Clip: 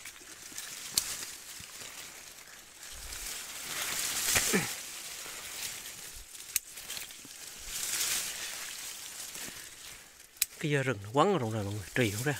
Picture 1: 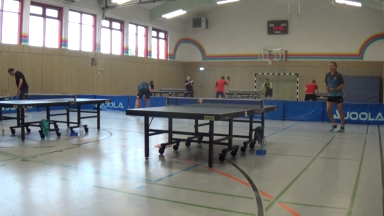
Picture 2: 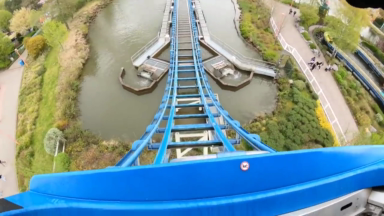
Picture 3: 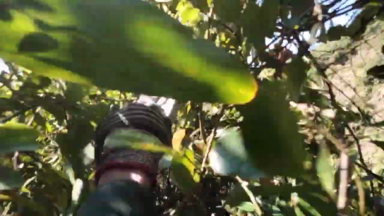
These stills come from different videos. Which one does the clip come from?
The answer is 3